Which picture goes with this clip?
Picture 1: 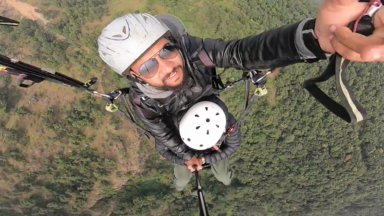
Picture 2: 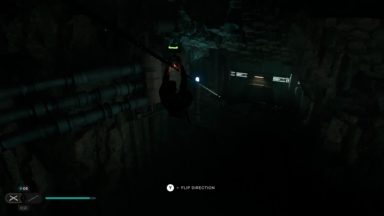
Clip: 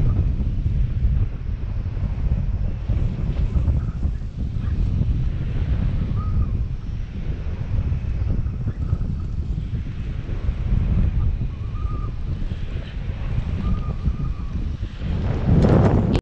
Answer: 1